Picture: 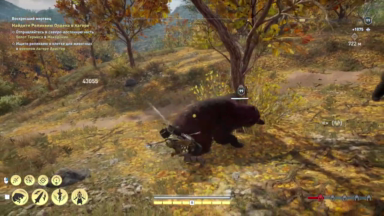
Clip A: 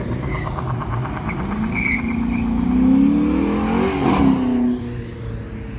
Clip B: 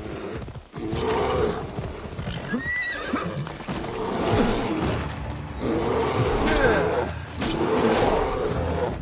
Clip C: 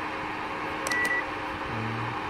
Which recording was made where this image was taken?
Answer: B